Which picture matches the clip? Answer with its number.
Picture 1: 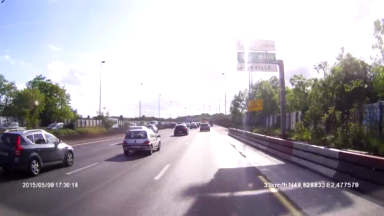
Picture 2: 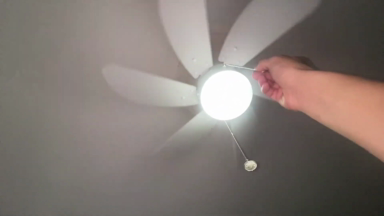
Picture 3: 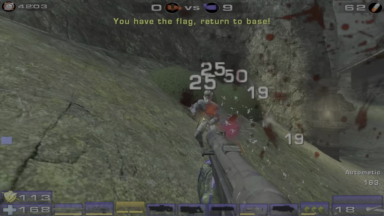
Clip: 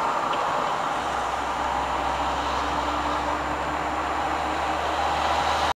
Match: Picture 1